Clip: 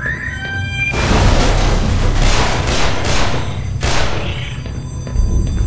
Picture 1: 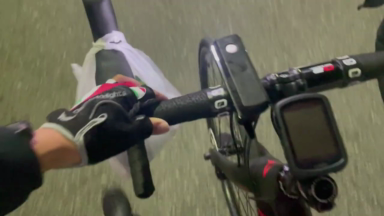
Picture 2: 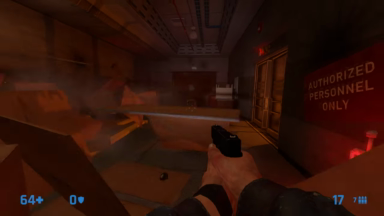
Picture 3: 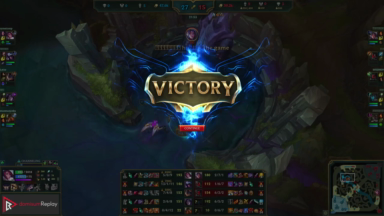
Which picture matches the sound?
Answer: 2